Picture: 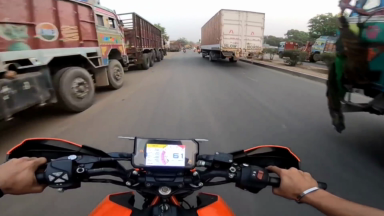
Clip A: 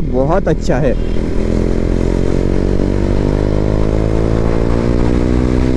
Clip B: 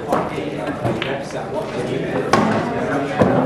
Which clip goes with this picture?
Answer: A